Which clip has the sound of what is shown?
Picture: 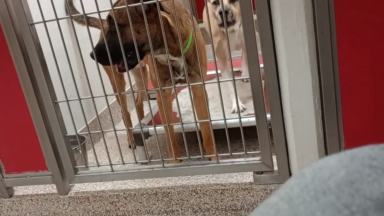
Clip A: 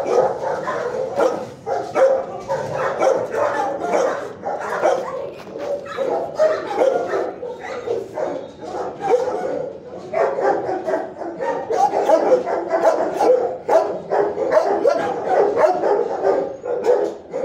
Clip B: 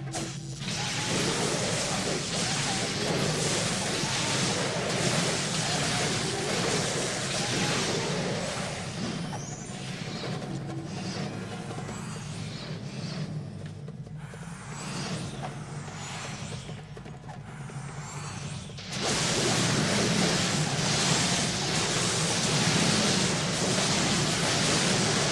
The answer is A